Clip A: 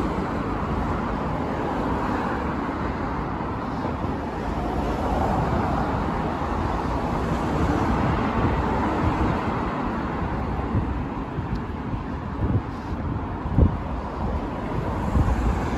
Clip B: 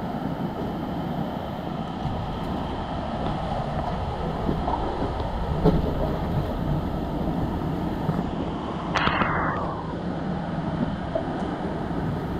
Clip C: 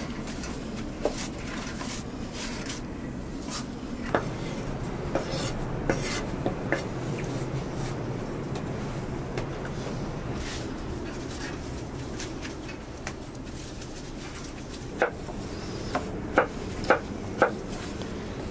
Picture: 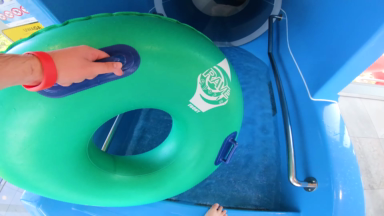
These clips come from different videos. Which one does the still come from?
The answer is B